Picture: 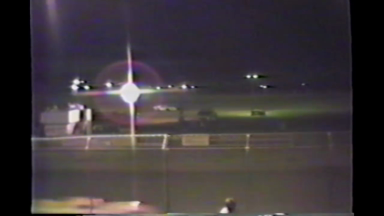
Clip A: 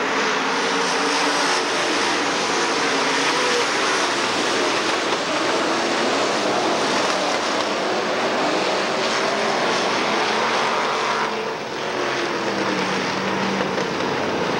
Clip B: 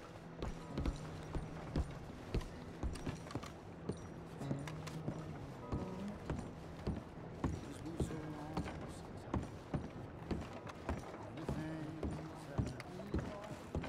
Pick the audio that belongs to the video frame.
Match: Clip A